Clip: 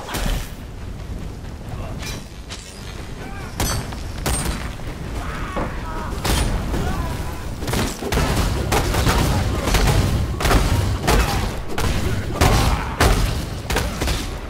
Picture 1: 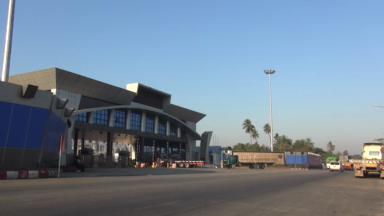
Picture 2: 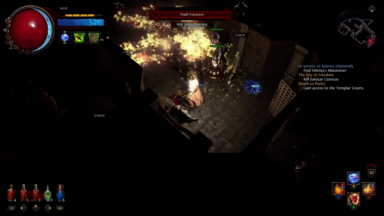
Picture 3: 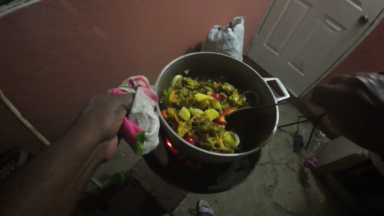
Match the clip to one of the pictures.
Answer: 2